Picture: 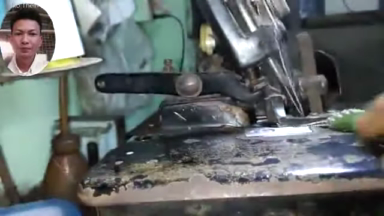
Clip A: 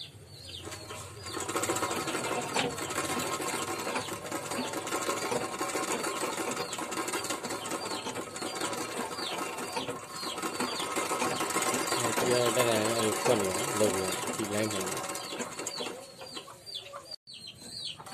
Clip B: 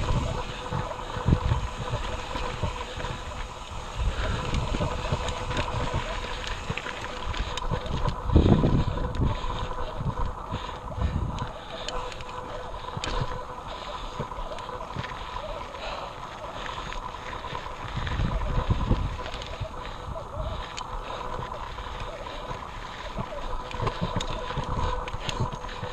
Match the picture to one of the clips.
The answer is A